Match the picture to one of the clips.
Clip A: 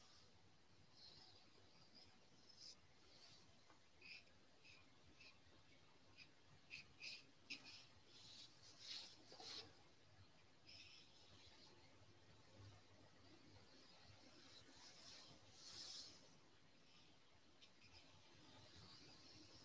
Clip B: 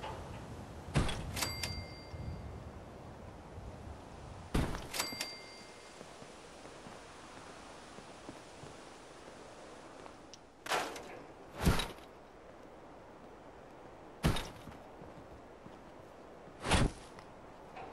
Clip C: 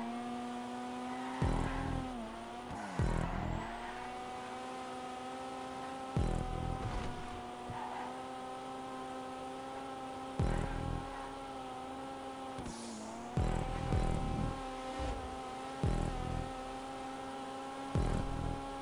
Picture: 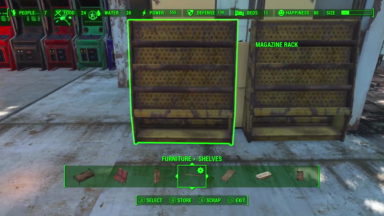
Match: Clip B